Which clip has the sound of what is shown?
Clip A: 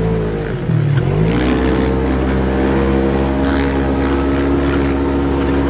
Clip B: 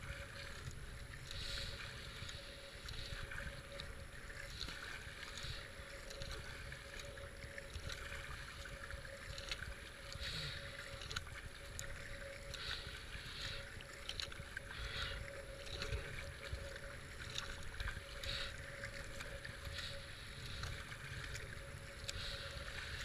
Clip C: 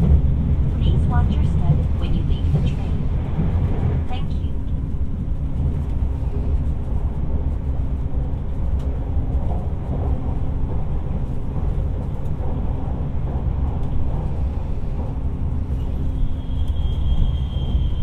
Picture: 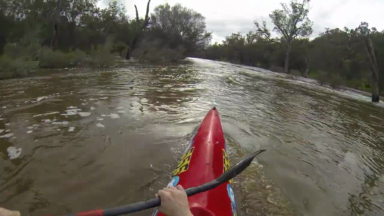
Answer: B